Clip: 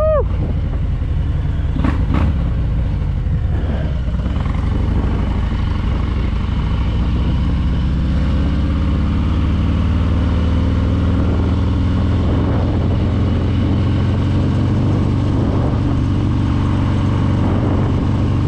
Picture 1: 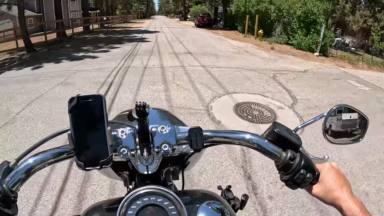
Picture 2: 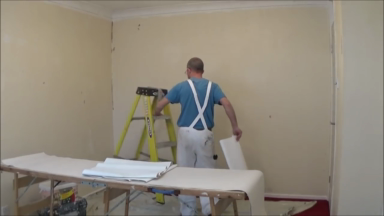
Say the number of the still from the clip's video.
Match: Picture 1